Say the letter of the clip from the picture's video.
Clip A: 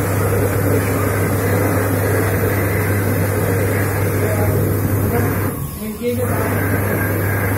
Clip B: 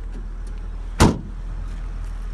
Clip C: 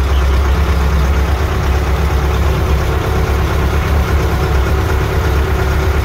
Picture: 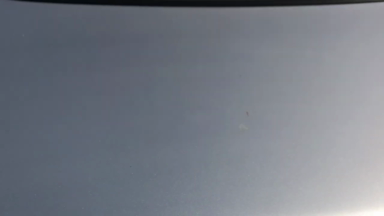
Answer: B